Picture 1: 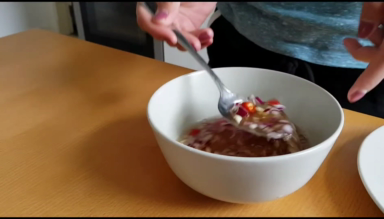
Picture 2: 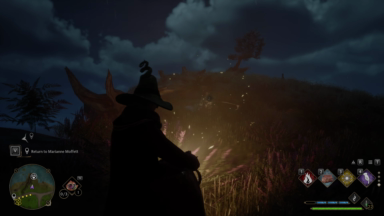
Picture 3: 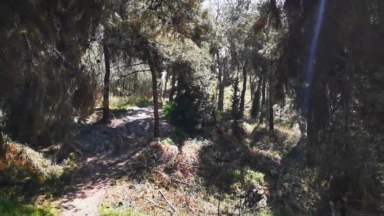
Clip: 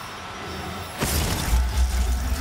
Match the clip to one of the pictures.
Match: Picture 2